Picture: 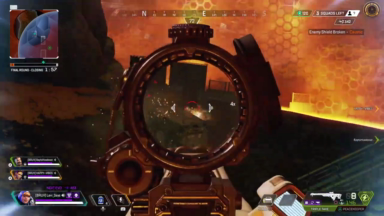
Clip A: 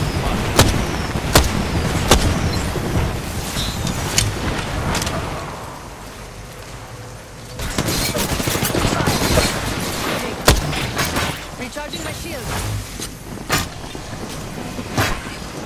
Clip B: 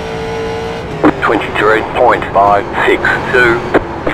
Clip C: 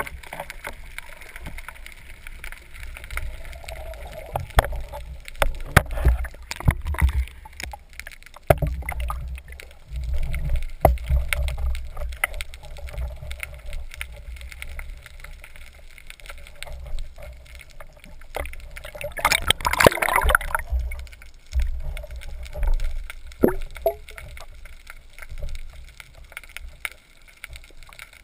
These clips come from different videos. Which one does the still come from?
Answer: A